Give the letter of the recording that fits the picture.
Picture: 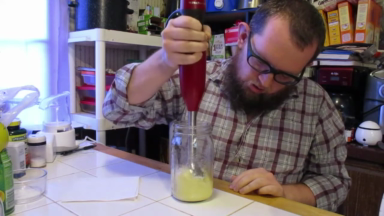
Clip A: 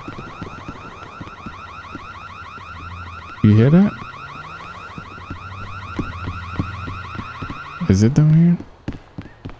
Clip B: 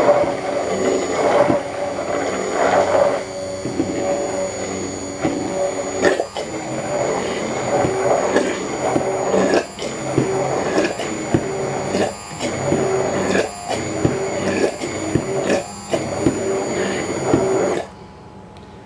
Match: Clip B